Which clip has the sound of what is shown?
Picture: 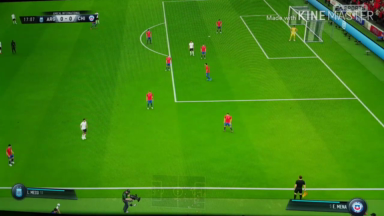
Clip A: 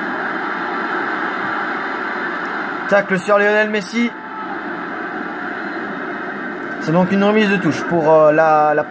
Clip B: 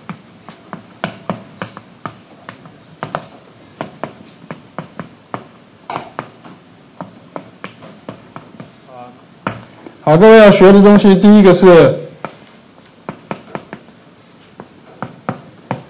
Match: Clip A